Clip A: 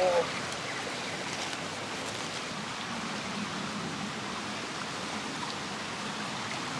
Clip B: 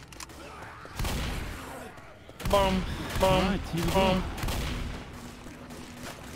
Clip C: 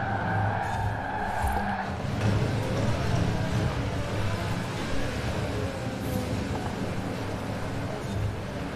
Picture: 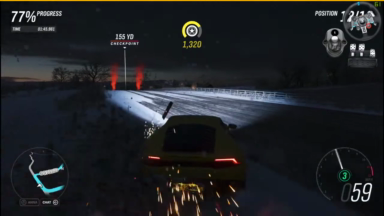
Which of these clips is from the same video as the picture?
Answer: C